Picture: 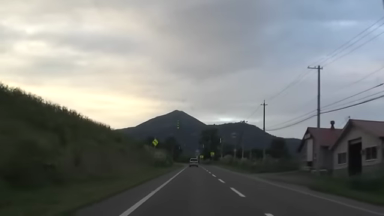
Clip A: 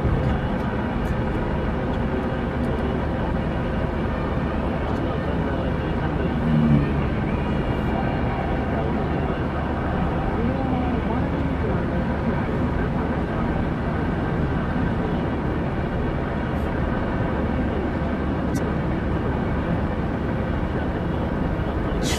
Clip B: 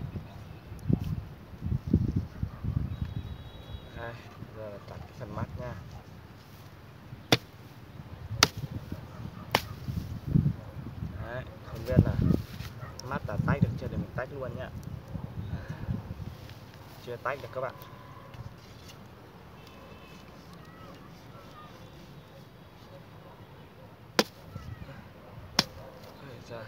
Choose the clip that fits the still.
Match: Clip A